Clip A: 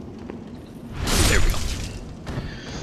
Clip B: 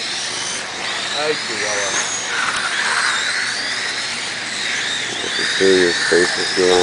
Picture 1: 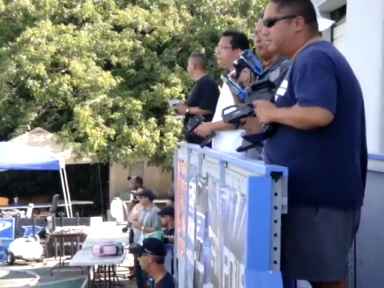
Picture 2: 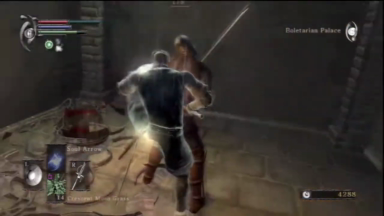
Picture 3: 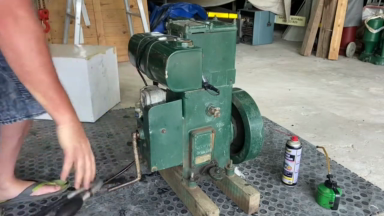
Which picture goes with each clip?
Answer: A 2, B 1